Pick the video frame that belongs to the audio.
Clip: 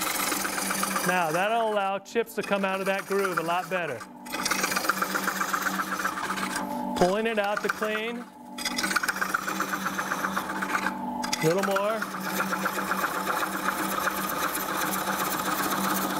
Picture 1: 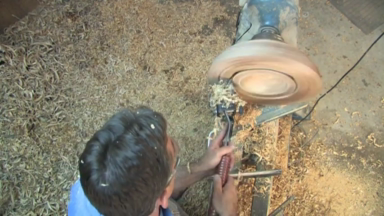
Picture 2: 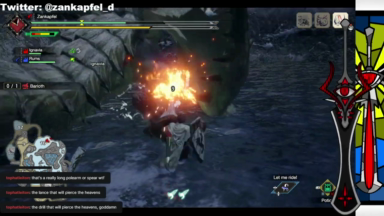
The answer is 1